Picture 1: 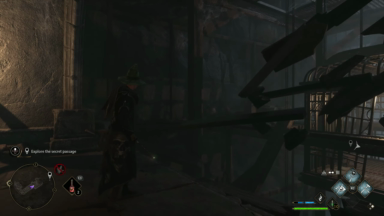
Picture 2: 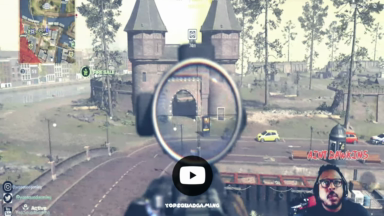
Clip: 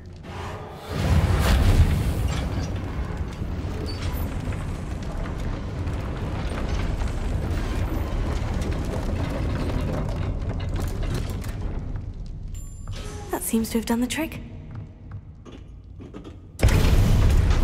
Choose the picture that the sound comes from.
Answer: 1